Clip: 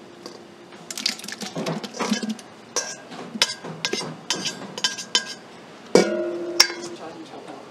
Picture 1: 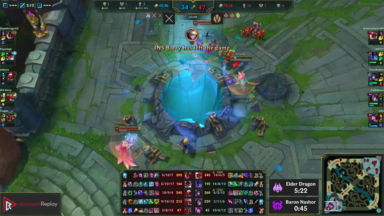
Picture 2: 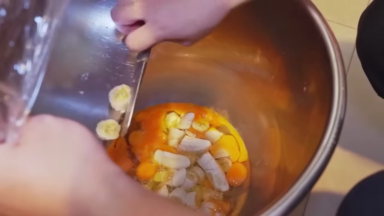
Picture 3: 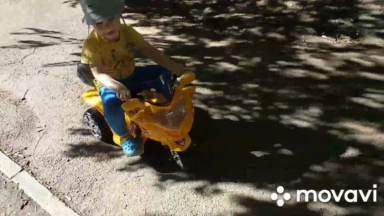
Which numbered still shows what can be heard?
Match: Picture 2